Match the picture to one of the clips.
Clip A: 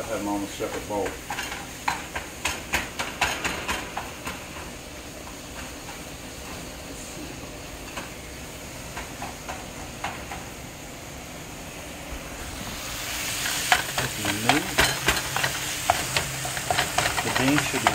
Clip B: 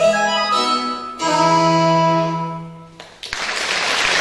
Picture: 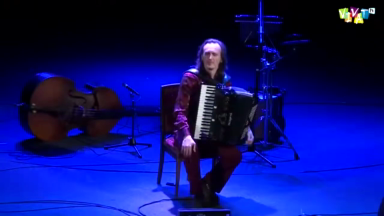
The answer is B